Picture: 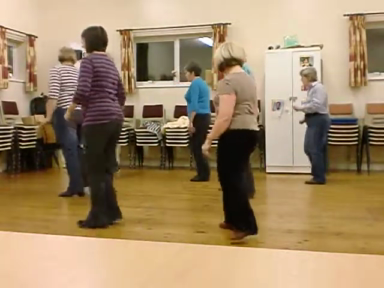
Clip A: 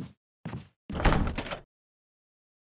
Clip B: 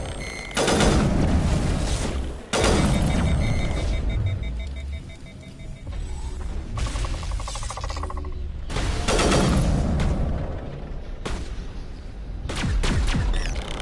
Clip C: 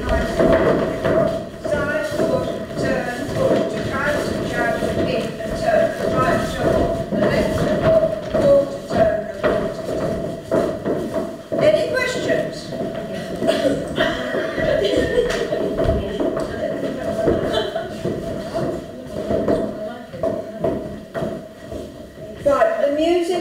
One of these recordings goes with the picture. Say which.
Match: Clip C